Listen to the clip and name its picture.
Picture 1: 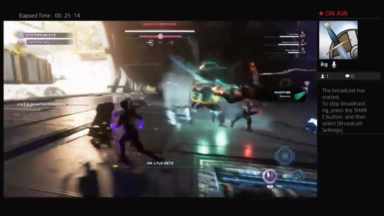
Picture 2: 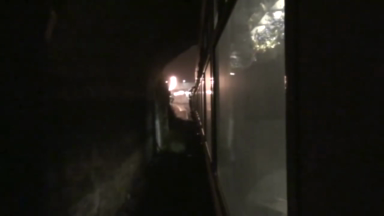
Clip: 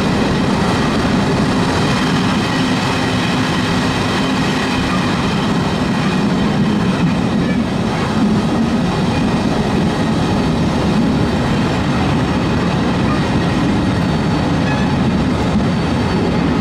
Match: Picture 2